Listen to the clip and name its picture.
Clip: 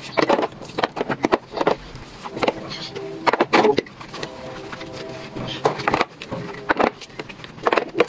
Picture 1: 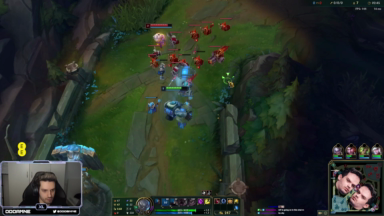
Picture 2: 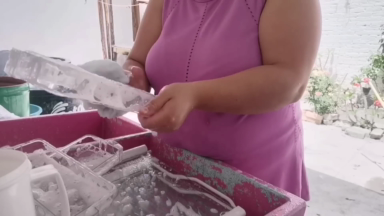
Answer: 2